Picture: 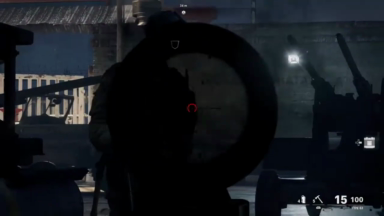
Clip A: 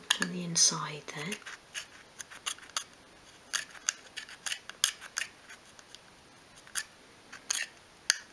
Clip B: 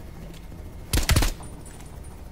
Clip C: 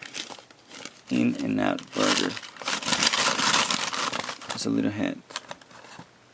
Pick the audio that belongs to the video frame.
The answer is B